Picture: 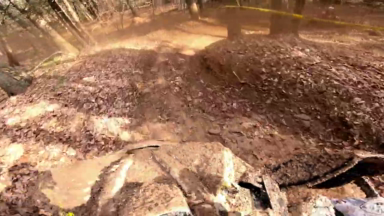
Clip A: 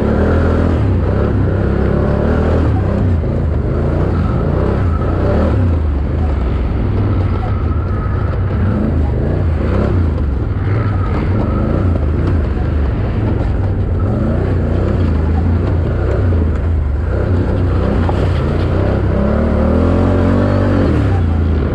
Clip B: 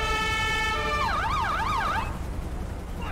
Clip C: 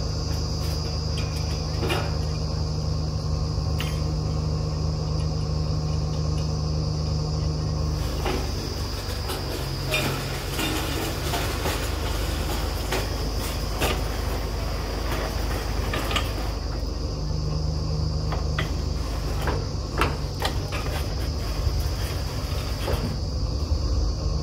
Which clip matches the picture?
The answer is A